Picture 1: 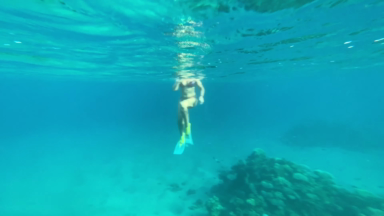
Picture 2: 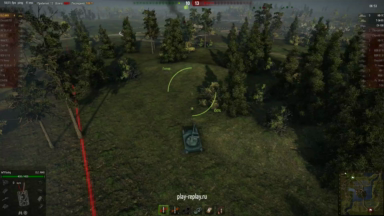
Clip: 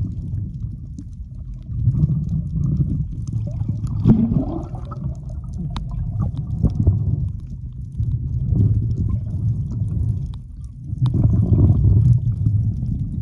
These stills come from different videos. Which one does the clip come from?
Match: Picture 1